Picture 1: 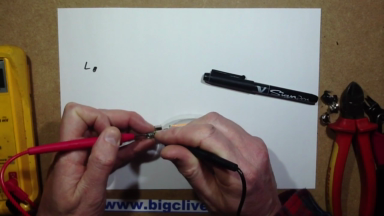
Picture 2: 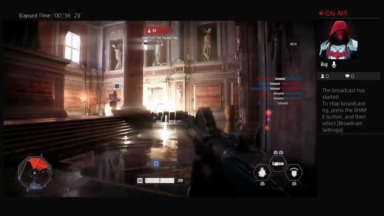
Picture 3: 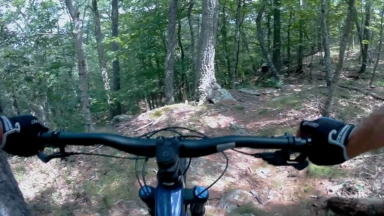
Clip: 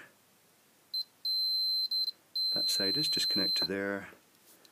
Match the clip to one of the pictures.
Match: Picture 1